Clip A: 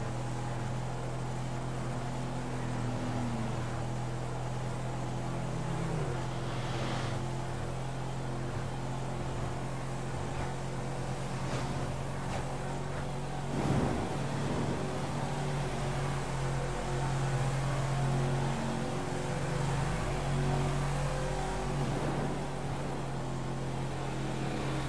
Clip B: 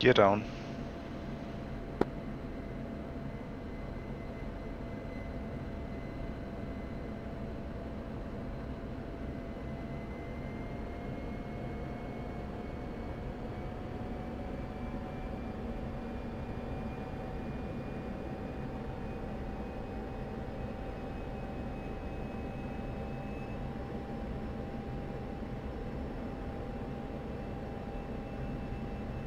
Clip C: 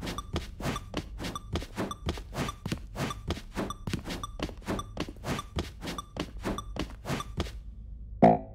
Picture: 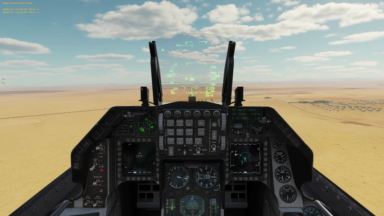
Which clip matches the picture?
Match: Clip B